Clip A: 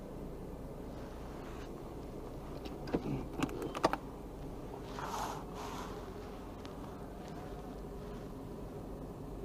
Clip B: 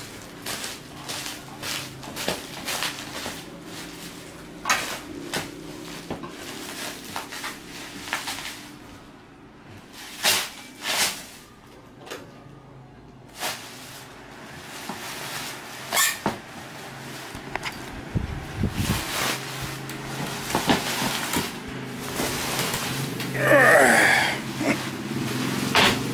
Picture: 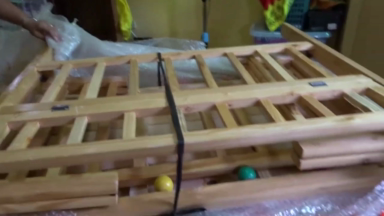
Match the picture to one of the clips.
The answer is B